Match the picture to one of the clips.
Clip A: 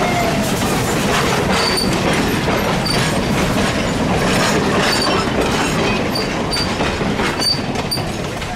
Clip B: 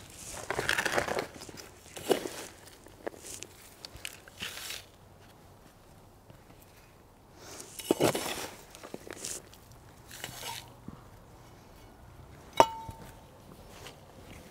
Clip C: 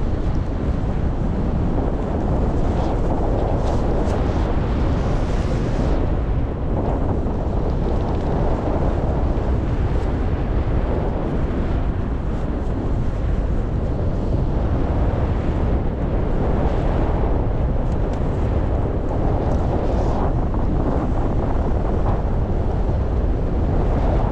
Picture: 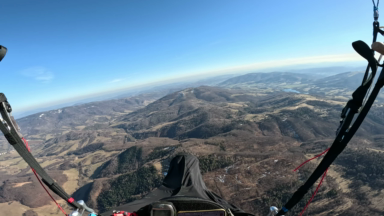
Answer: C